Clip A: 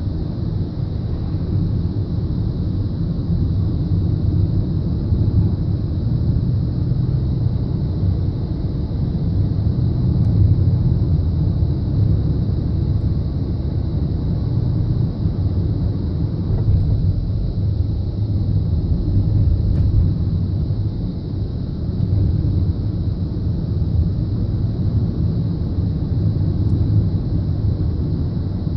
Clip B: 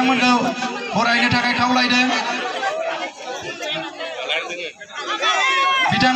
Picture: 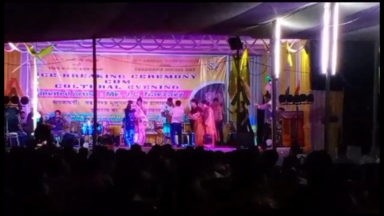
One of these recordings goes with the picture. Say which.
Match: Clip B